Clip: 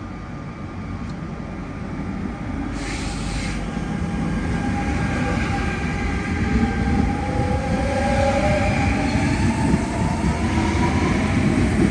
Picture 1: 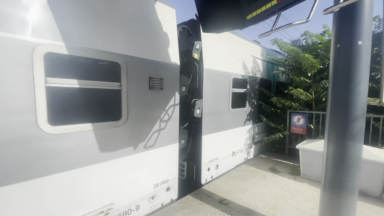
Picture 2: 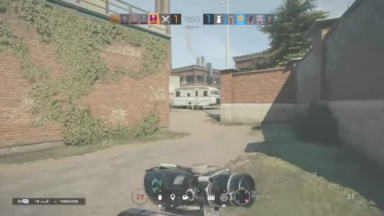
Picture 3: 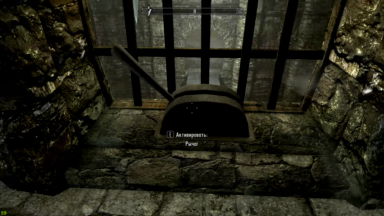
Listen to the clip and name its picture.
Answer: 1